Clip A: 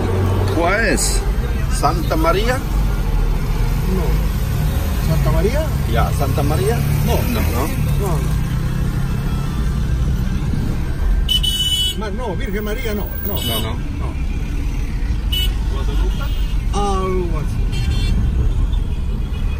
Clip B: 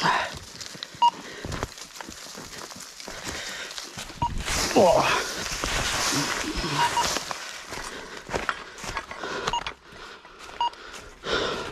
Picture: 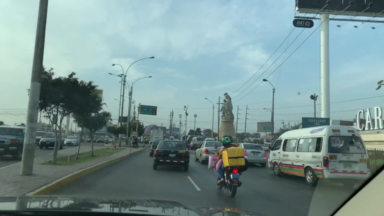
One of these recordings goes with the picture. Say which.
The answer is A